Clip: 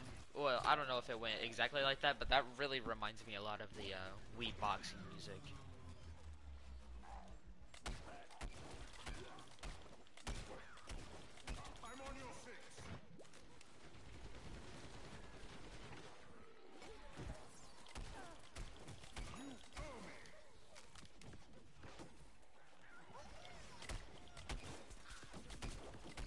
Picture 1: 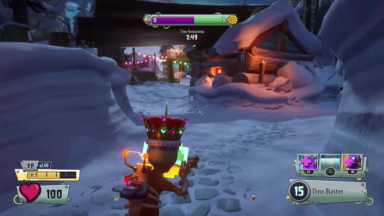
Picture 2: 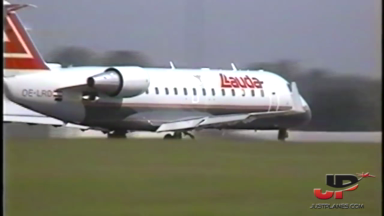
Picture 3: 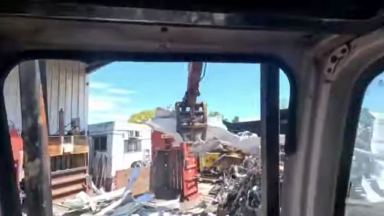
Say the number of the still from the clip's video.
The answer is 1